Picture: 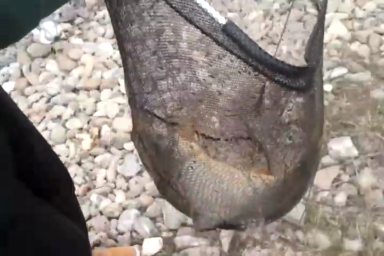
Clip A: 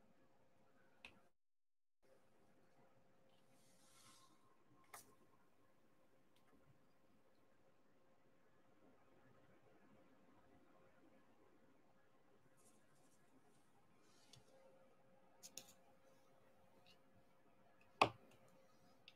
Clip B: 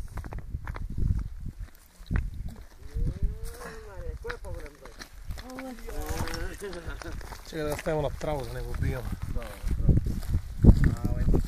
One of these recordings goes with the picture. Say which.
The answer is B